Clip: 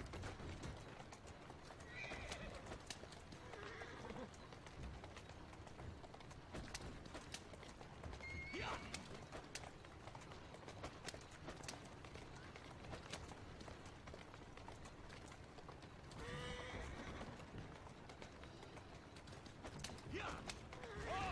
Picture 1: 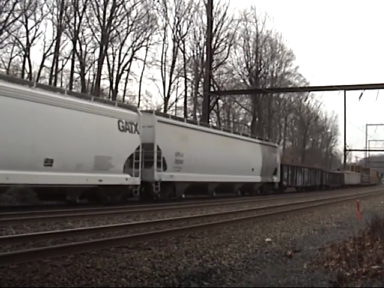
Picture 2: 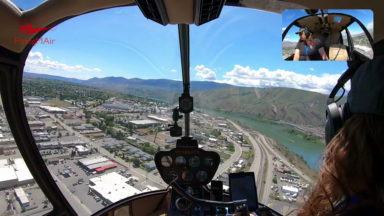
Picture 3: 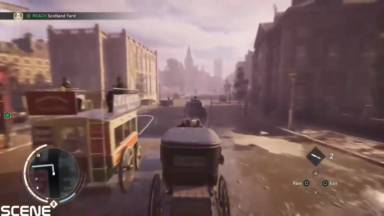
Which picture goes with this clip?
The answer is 3